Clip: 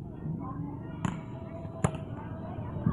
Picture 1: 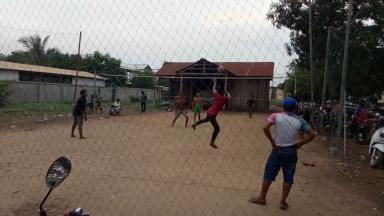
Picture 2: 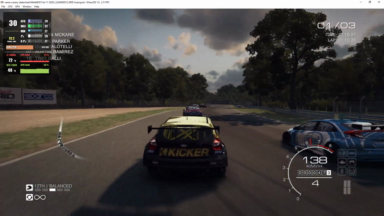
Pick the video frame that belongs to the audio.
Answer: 1